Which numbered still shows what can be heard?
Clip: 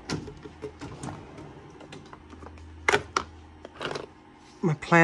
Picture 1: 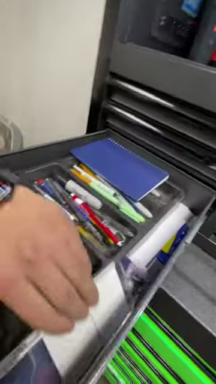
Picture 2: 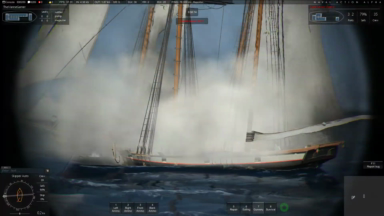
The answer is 1